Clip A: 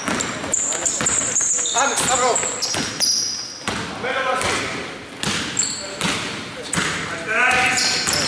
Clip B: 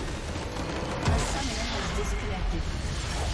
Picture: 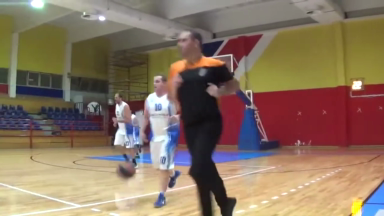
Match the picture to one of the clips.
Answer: A